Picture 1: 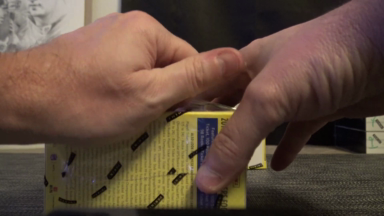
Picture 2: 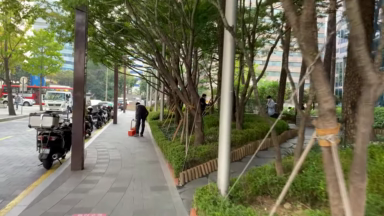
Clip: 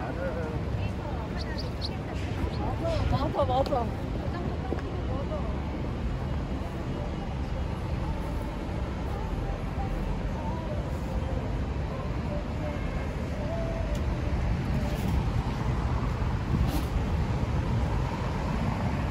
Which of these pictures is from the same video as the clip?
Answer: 2